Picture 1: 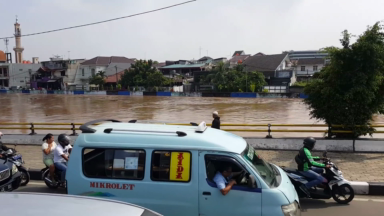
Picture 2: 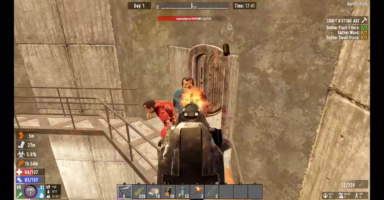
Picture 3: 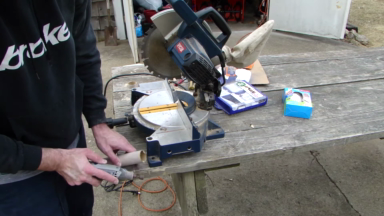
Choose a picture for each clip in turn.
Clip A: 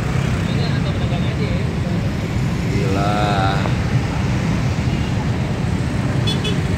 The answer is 1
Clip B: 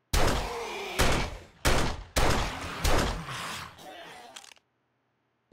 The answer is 2